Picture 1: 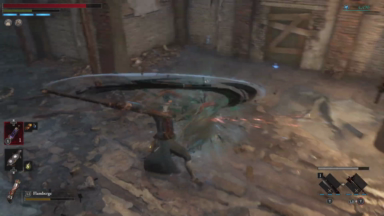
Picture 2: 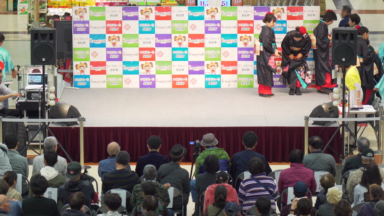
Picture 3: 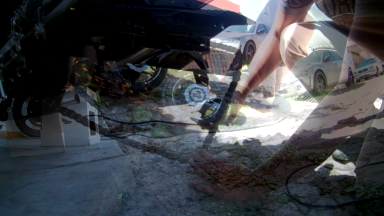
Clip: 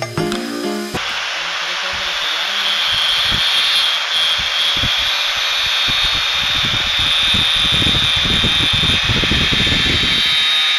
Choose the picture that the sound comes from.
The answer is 3